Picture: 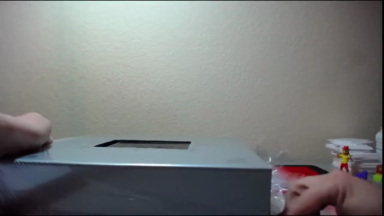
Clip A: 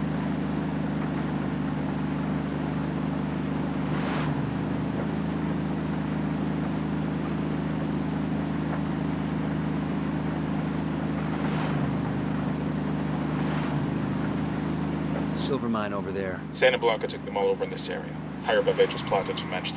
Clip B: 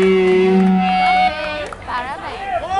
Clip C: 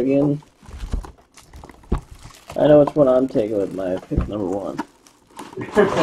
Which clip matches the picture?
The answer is C